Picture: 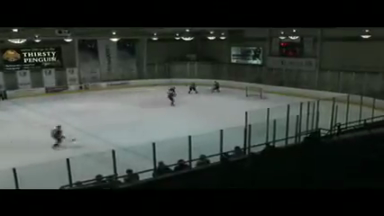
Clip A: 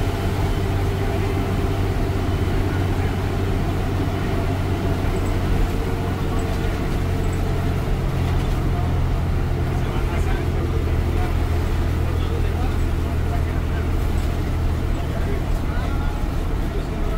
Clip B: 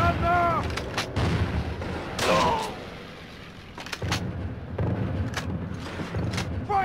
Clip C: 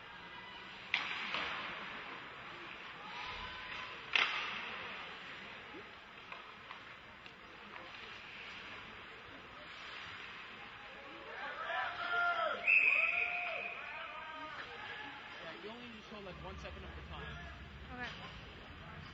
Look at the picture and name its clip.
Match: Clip C